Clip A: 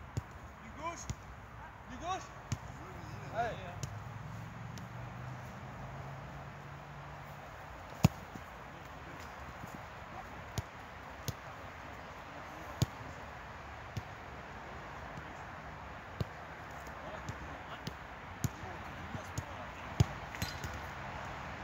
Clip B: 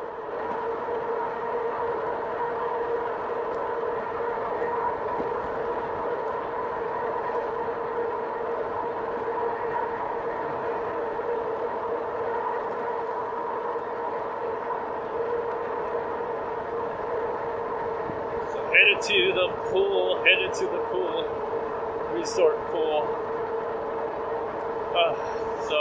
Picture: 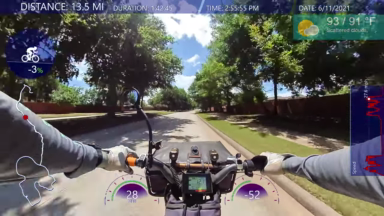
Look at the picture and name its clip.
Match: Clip B